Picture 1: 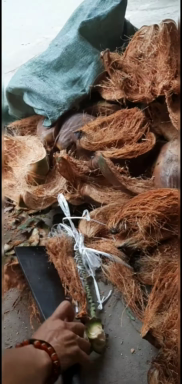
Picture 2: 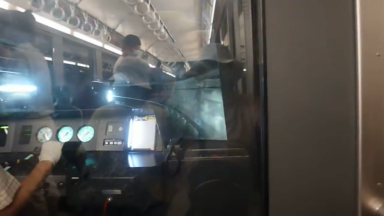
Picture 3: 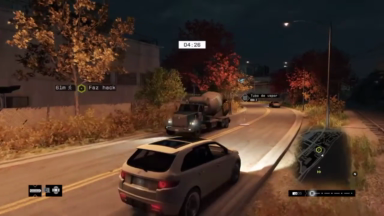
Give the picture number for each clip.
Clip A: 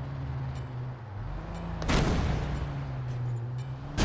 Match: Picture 3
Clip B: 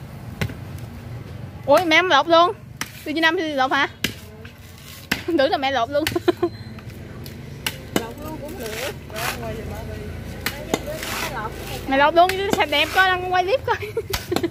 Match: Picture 1